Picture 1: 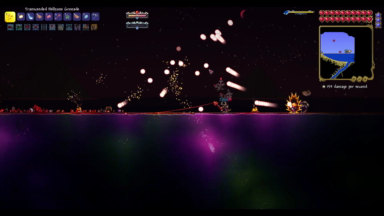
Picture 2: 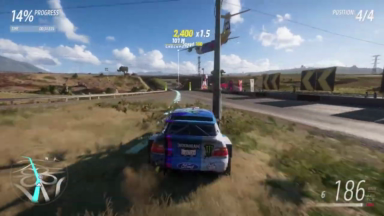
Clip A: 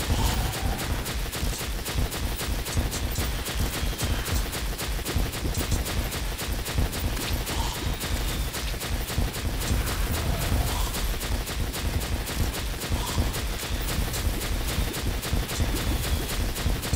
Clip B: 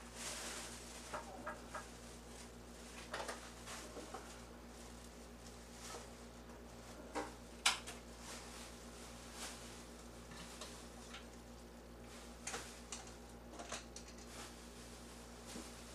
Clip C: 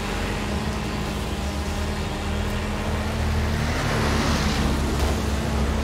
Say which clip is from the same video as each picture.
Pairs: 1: A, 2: C